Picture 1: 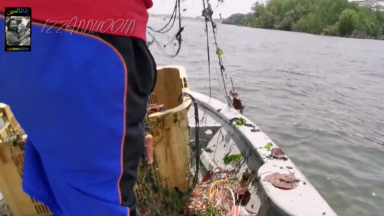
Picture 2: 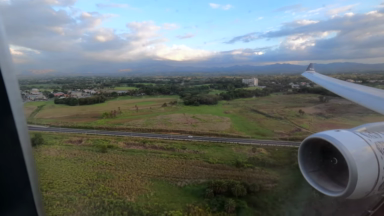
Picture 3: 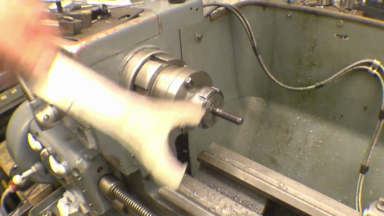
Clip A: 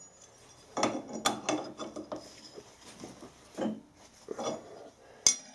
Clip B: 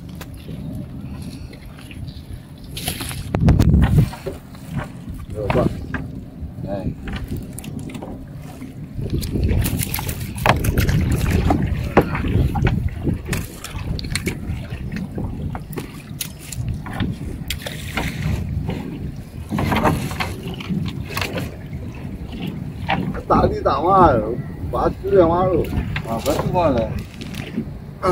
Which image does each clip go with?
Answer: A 3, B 1